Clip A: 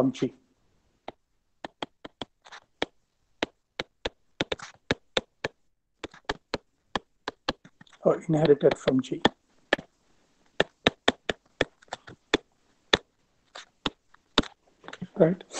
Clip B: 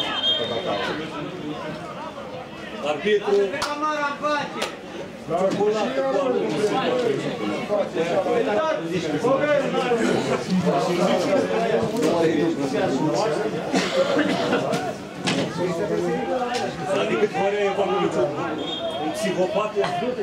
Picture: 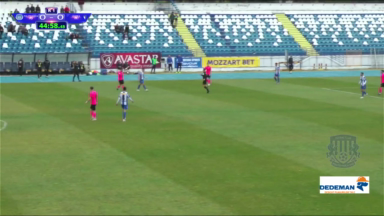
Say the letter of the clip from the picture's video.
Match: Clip B